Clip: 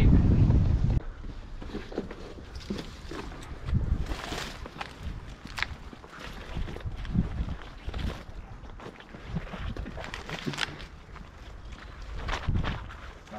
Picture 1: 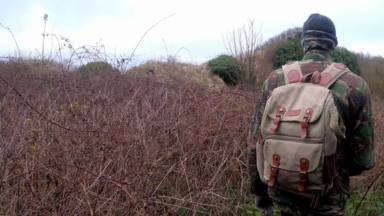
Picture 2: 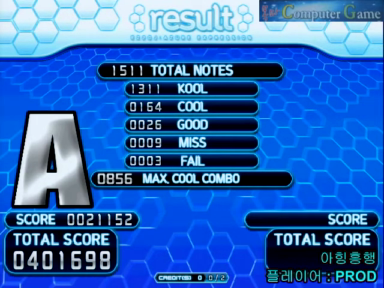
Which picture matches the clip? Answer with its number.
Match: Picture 1